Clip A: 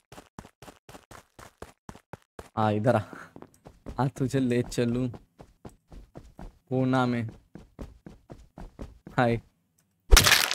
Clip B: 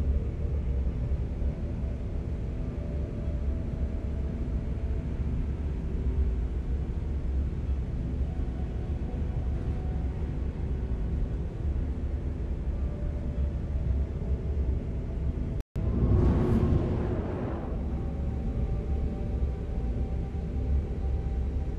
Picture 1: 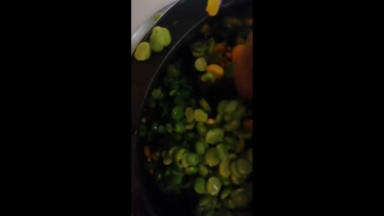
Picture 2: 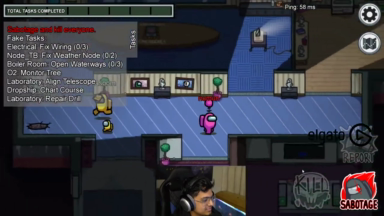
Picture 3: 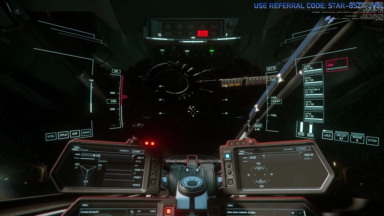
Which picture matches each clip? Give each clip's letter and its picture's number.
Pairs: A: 2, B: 3